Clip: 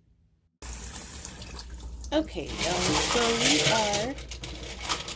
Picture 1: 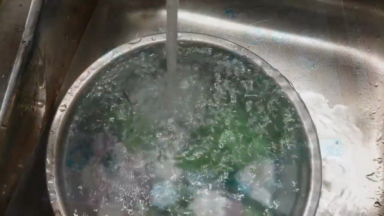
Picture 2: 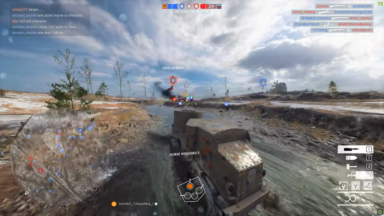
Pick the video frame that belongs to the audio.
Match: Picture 1